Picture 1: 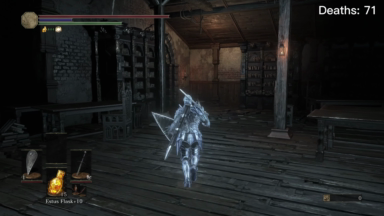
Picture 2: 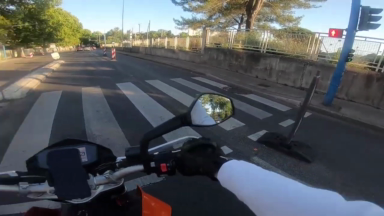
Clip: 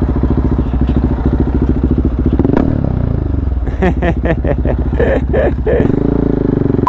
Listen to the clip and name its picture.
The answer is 2